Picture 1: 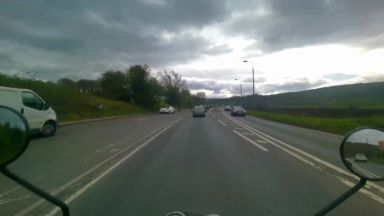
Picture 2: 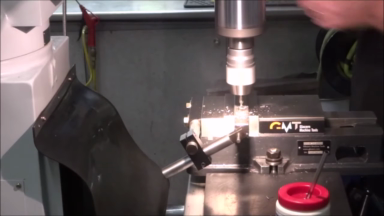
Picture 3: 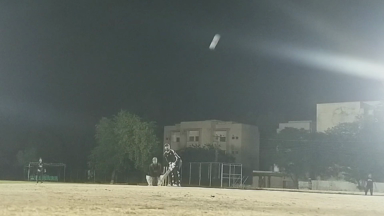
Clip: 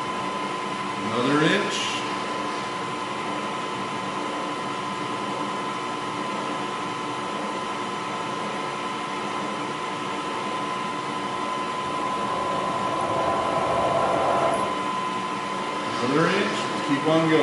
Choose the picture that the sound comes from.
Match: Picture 2